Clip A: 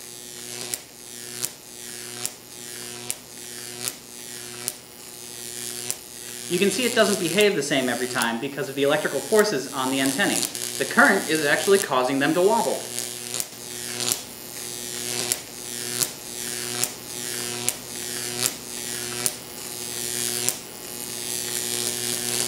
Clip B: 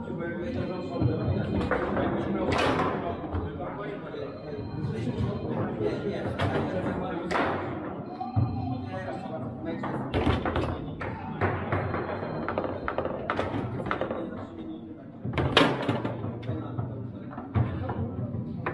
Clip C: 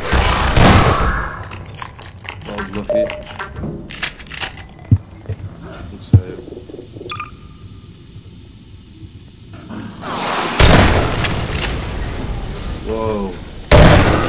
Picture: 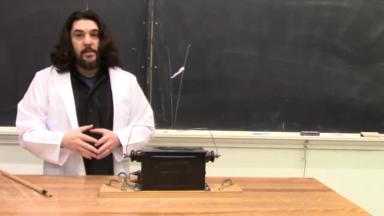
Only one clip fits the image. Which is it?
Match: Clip A